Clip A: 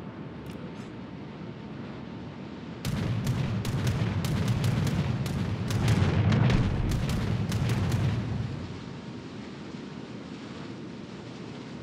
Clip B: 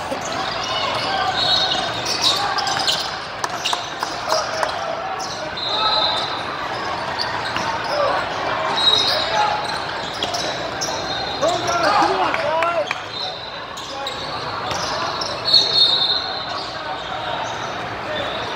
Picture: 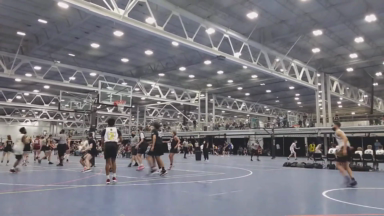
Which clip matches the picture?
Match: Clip B